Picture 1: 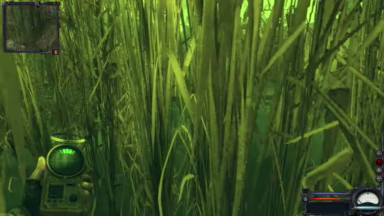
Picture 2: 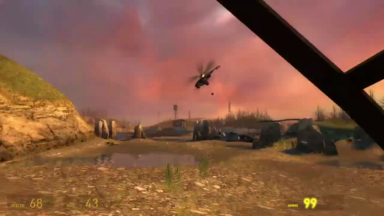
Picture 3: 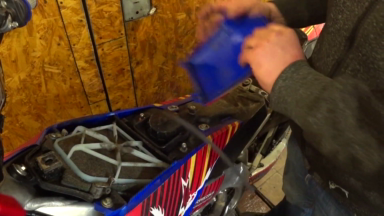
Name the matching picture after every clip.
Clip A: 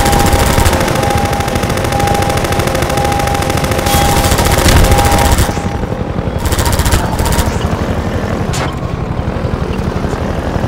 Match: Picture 2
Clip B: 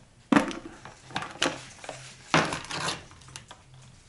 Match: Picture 3